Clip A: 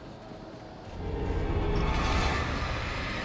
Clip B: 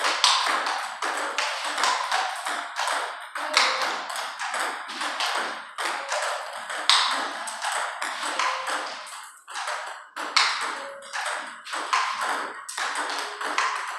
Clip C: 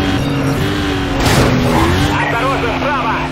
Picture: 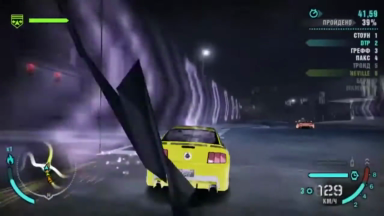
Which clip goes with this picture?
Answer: C